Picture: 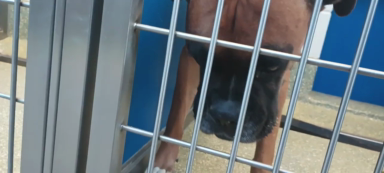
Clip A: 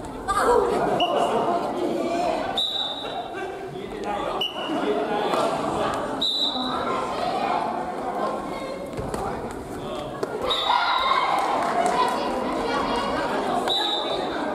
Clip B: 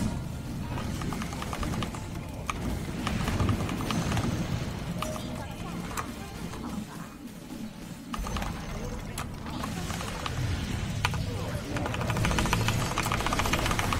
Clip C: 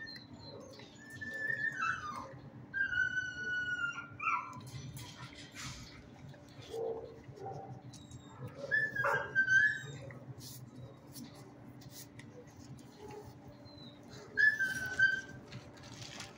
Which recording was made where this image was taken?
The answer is C